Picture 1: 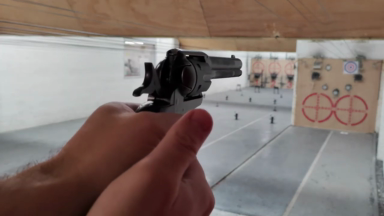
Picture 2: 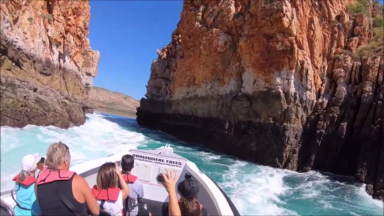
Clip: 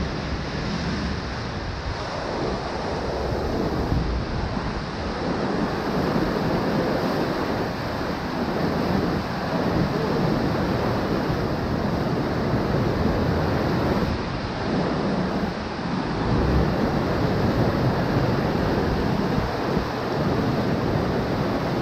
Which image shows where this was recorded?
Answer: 2